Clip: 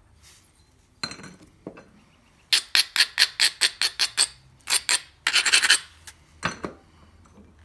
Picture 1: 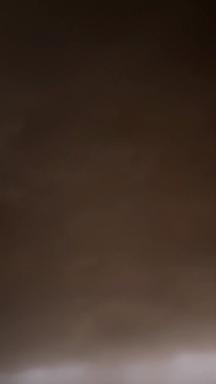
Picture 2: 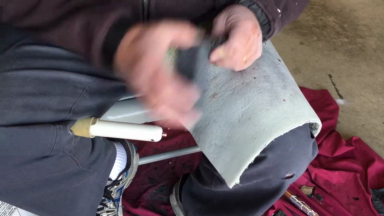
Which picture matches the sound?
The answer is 2